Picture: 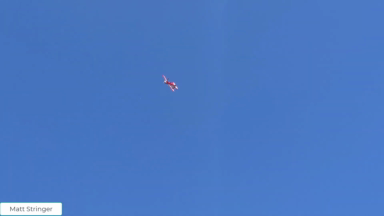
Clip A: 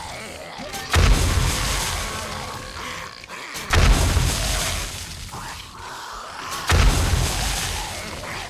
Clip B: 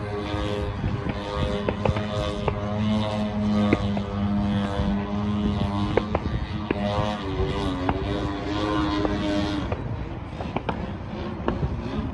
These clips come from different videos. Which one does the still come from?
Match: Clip B